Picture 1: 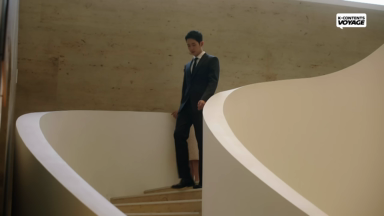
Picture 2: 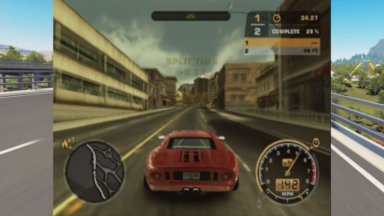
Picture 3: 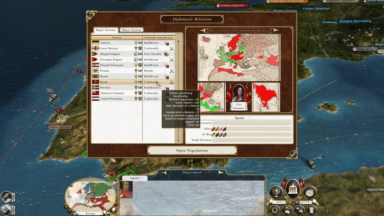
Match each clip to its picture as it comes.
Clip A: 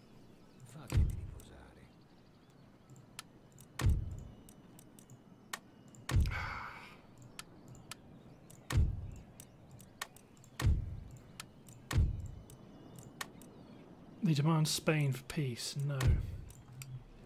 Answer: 3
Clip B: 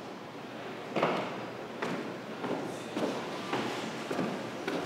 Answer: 1